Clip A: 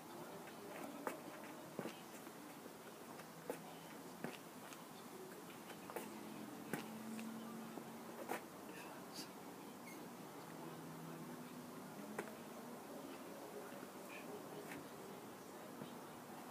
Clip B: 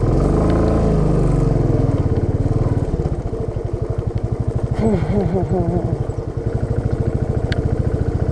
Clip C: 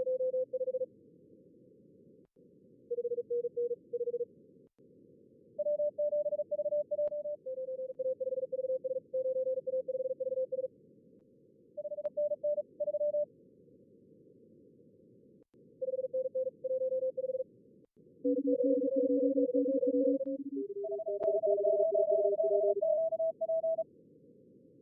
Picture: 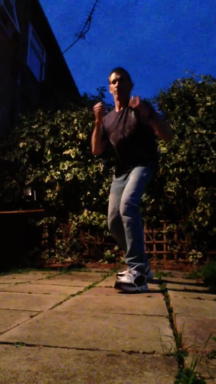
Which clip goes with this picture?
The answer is A